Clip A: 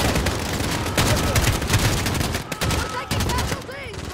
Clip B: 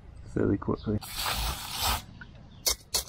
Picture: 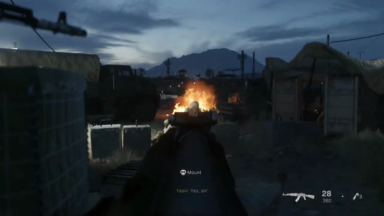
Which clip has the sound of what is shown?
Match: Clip A